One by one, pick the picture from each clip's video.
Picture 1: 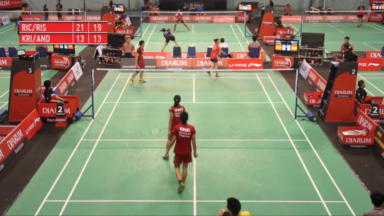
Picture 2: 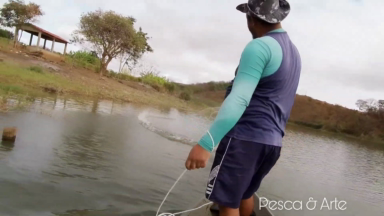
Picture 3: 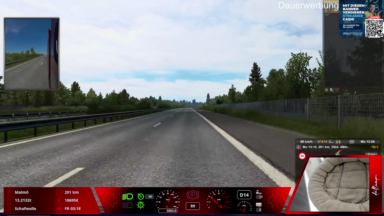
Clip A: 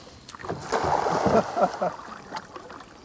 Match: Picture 2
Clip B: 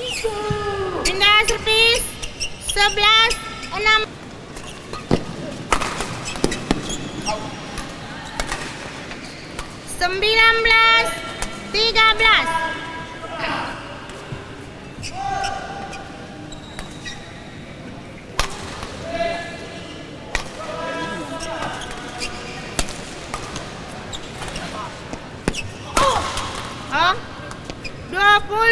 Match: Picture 1